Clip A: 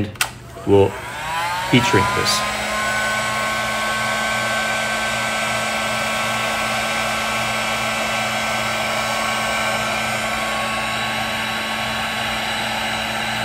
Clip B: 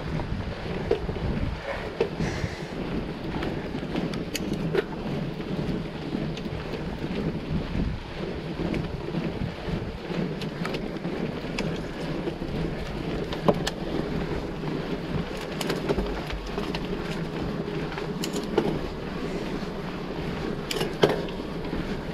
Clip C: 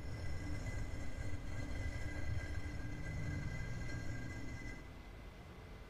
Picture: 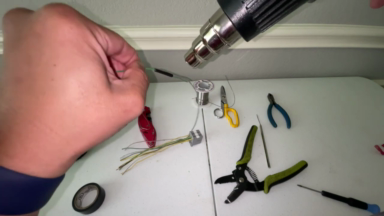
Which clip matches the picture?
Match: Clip A